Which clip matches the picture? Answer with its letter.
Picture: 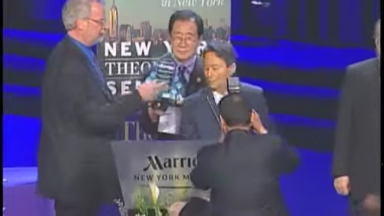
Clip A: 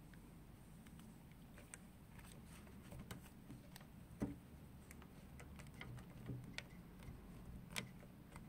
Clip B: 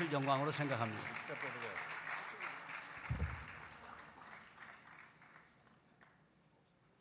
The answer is B